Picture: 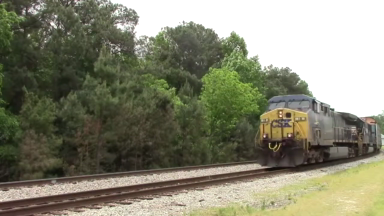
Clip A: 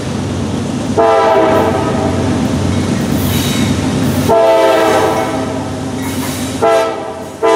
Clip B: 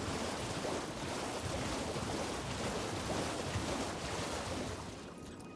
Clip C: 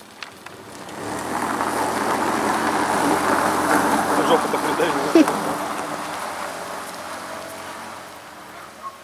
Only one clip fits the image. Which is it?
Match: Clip A